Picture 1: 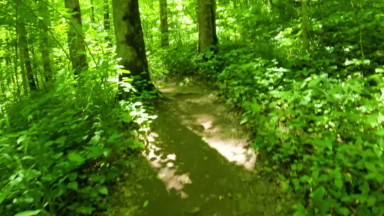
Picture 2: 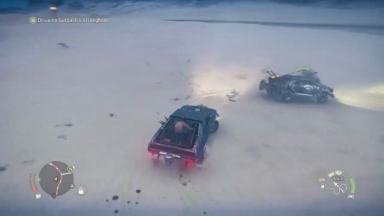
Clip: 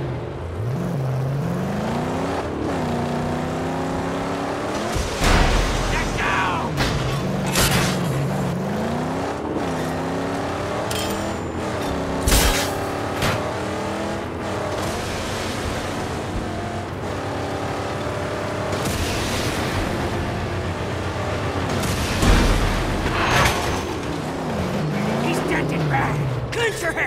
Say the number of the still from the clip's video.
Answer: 2